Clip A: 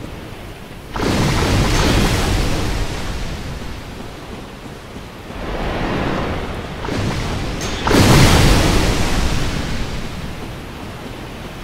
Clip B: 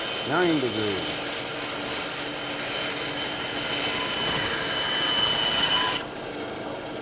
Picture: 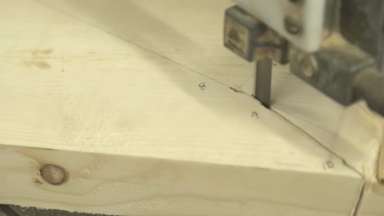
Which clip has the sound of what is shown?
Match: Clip B